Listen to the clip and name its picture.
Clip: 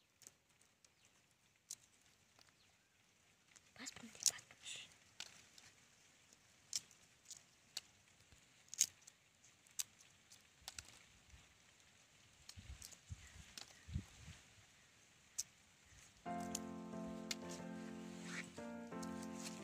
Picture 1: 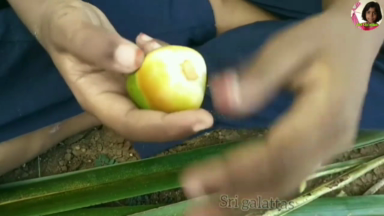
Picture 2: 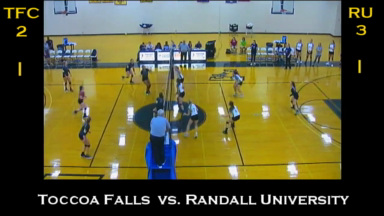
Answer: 1